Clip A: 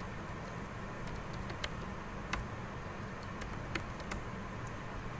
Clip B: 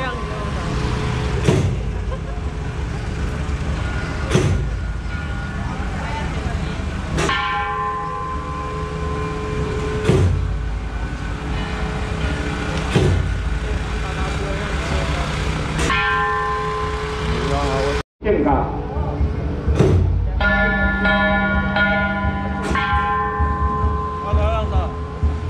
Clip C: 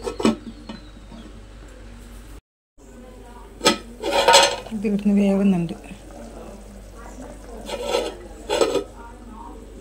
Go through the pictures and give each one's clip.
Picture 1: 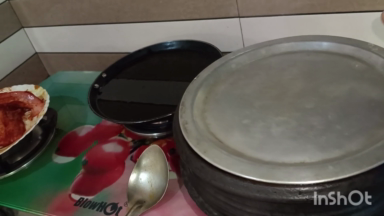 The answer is C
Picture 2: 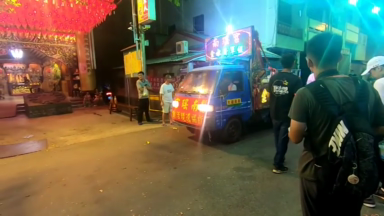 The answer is B